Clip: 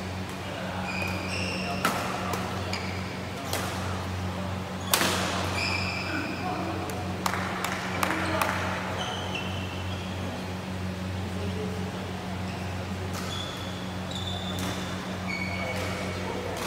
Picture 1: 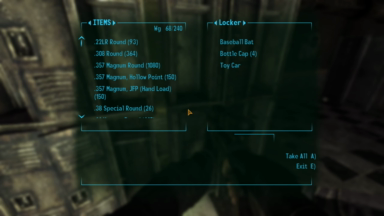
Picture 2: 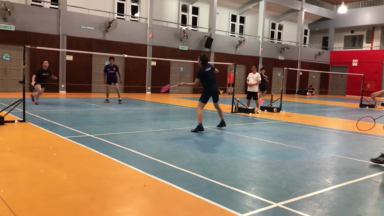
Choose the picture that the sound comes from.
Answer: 2